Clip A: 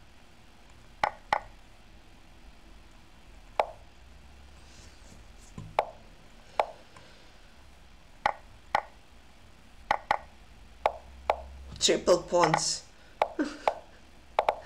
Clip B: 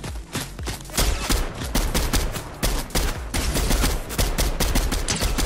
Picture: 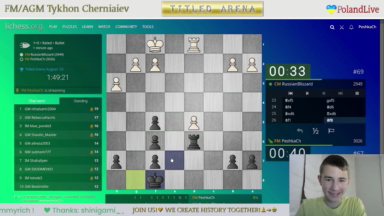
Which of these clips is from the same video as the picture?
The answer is A